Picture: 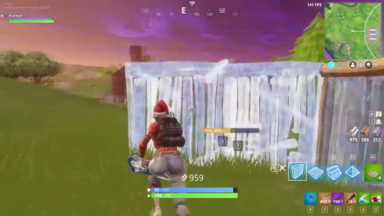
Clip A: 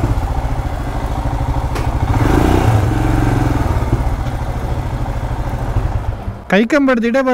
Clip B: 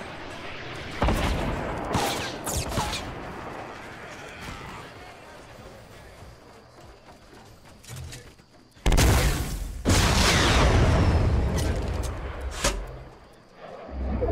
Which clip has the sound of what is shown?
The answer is B